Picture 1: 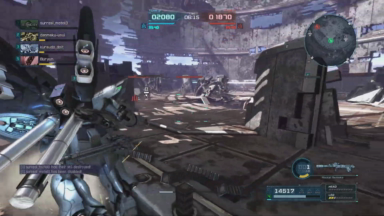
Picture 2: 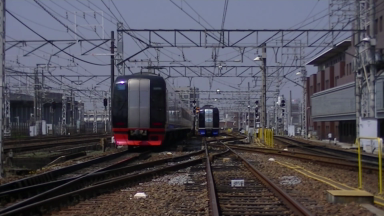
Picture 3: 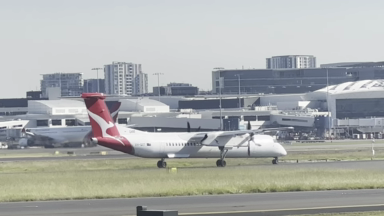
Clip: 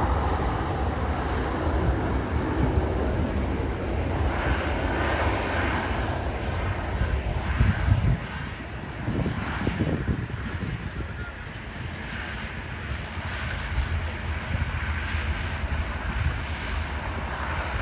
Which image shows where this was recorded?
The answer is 3